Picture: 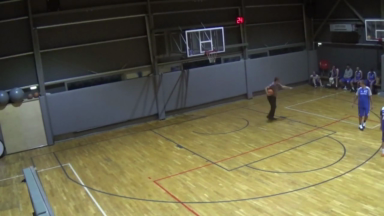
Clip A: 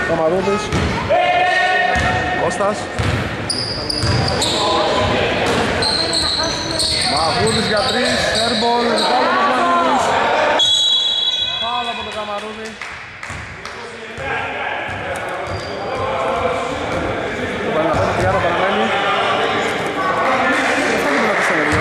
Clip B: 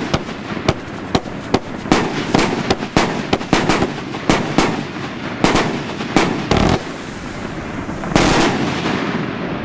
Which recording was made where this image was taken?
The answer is A